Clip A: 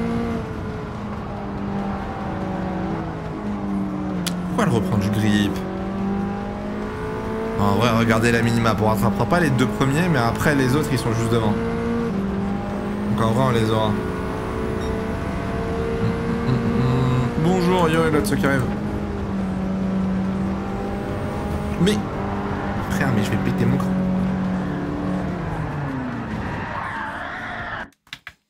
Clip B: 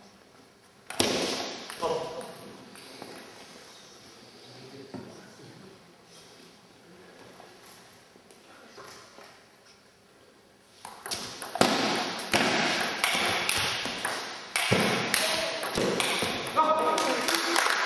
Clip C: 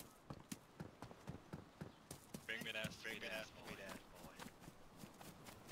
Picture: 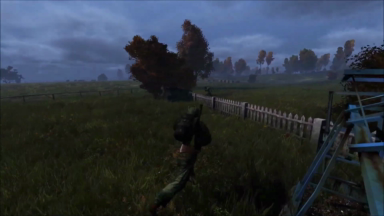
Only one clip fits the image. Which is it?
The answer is C